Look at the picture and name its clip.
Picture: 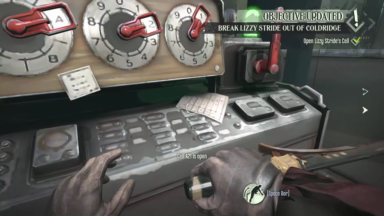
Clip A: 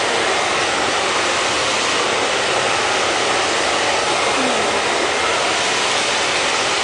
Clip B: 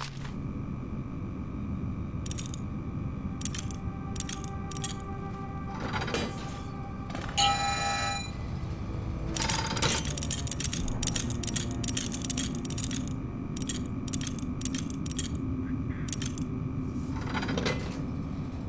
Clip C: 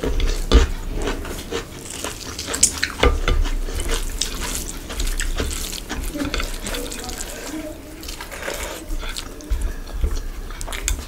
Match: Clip B